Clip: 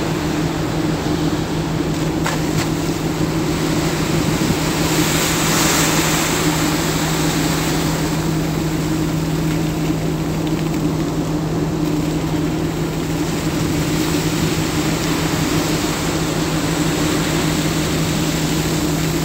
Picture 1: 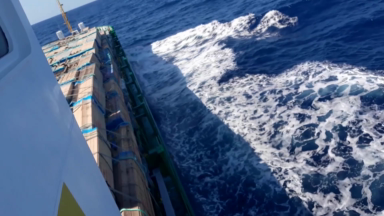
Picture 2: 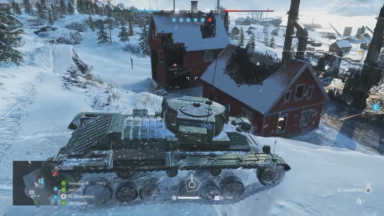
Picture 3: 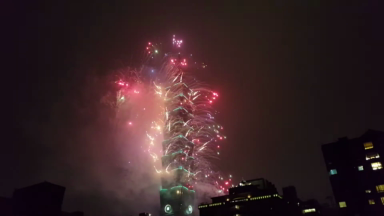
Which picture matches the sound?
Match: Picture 1